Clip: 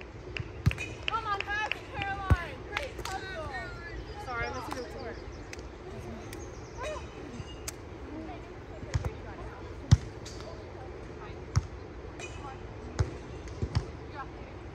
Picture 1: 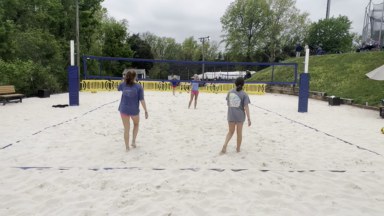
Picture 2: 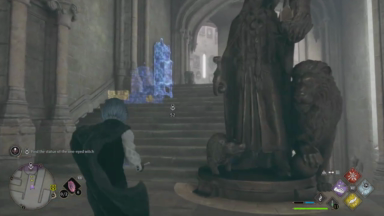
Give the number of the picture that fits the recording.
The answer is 1